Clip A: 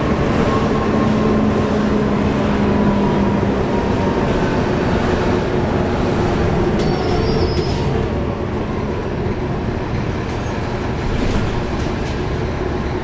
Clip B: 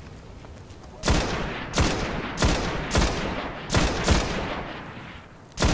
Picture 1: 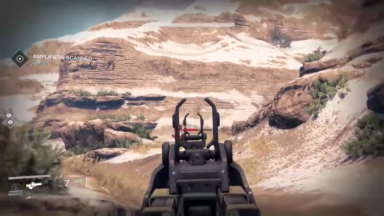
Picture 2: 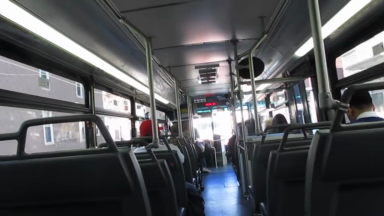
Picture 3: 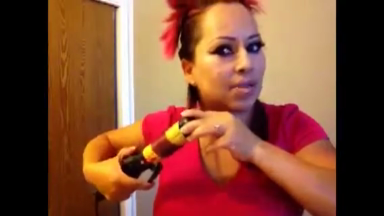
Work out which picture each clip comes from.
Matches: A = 2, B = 1